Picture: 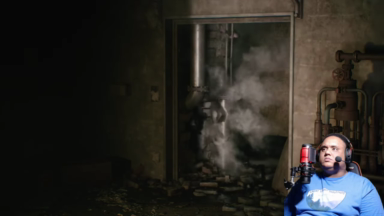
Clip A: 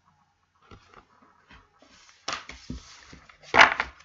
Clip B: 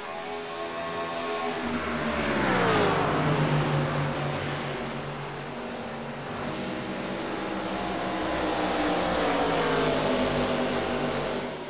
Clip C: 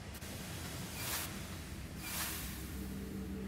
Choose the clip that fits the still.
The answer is C